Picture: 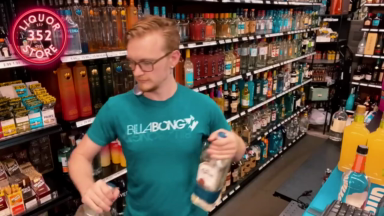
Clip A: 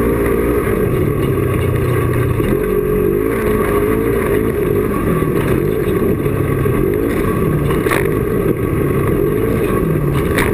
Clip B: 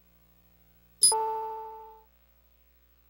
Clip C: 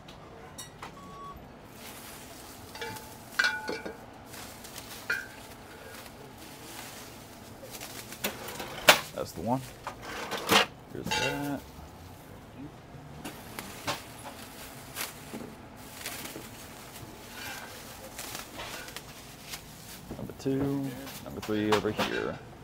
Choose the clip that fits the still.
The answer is C